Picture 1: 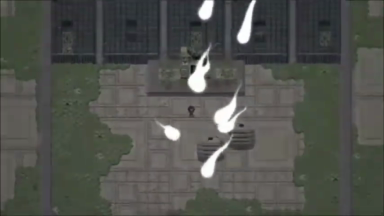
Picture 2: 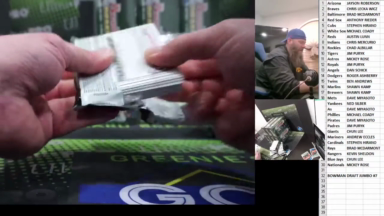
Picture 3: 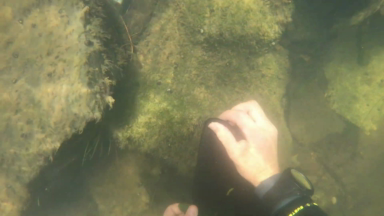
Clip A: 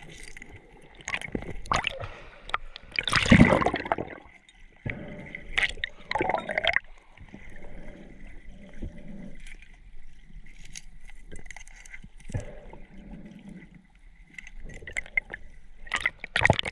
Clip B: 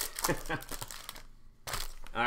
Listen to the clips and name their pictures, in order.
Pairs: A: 3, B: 2